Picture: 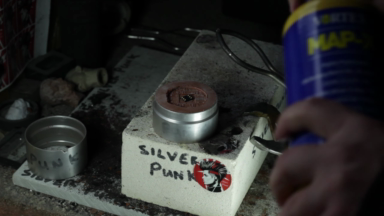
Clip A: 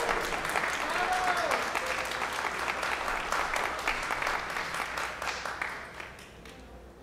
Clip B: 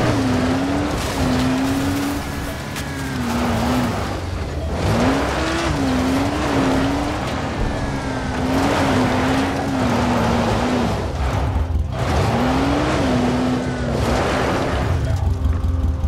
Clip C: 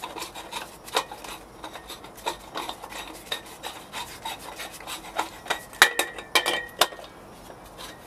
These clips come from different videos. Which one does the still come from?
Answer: C